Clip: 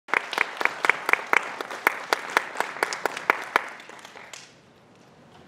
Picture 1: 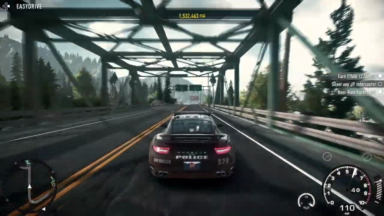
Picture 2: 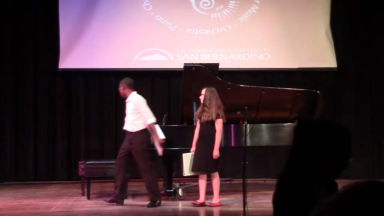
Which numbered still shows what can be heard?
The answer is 2